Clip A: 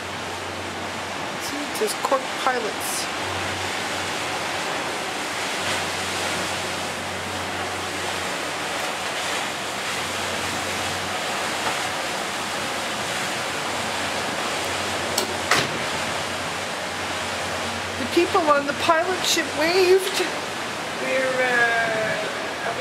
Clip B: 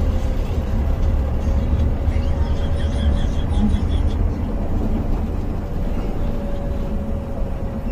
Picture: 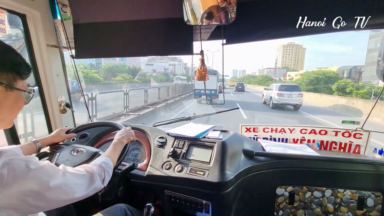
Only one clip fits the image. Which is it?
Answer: B